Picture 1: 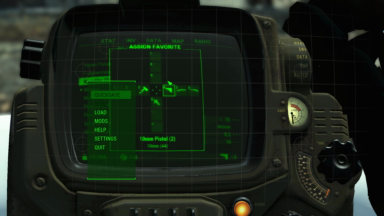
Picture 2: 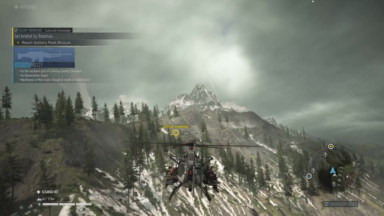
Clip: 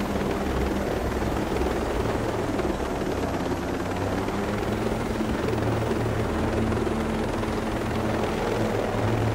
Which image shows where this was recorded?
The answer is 2